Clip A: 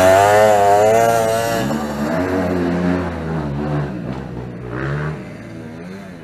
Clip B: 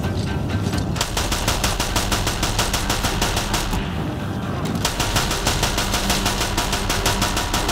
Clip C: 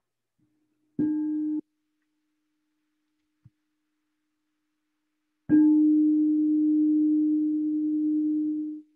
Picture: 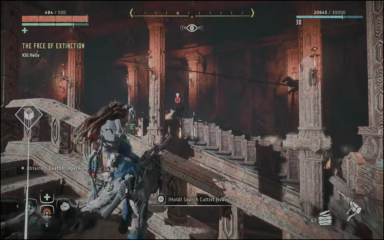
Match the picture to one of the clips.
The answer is B